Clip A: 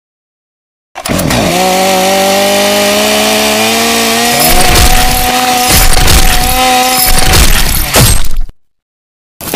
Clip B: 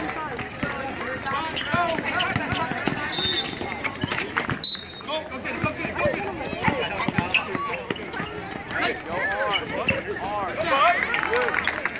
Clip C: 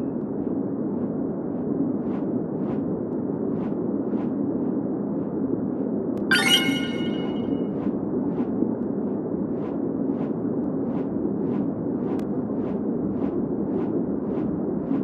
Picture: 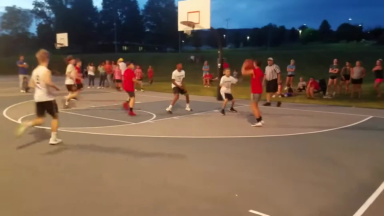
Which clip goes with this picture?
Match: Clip B